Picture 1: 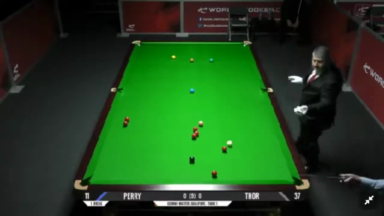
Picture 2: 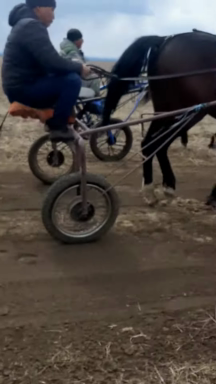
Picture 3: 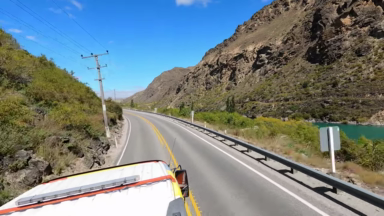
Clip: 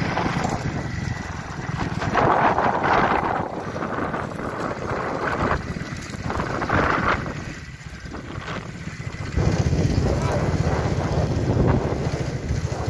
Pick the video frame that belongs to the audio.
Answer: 2